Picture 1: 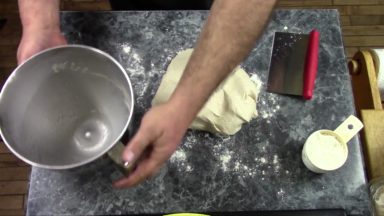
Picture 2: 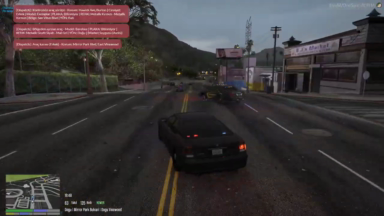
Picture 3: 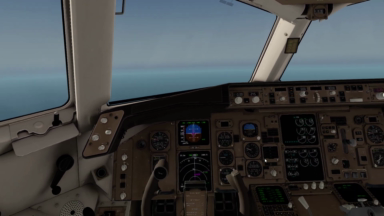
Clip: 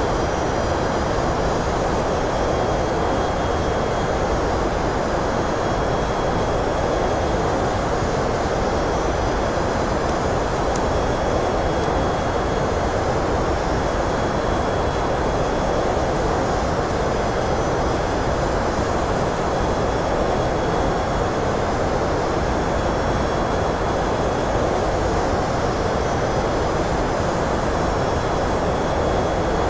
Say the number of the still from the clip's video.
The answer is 3